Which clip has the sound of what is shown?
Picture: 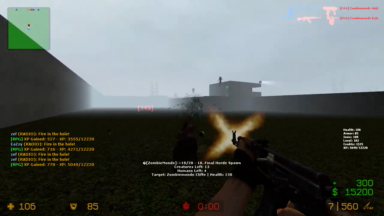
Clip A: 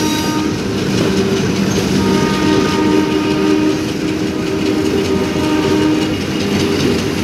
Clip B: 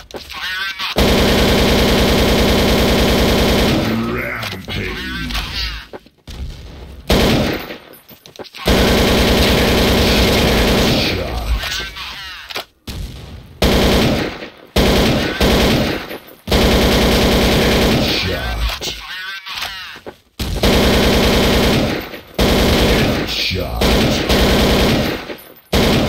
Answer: B